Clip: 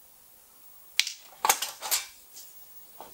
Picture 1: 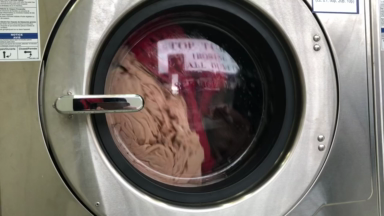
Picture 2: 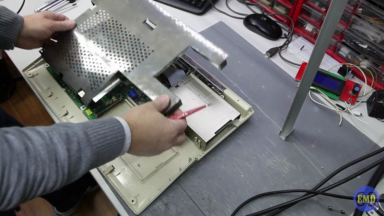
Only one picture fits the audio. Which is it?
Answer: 2